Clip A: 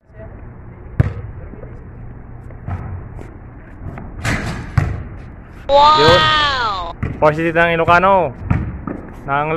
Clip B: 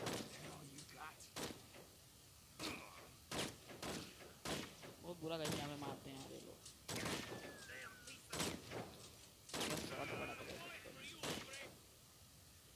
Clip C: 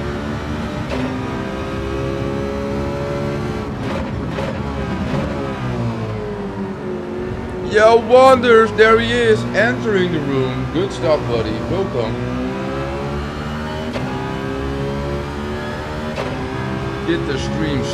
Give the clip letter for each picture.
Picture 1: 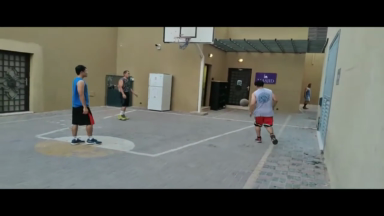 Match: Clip A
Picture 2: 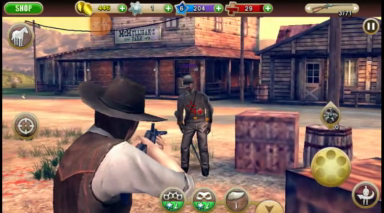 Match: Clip B